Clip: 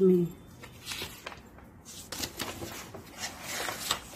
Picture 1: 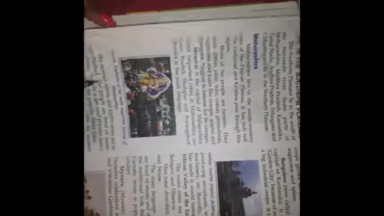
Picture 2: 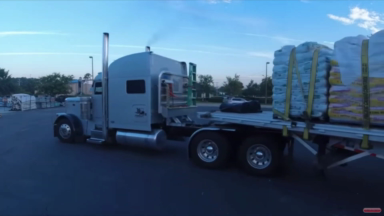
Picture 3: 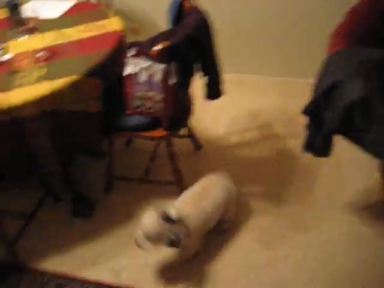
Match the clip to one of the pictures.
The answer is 1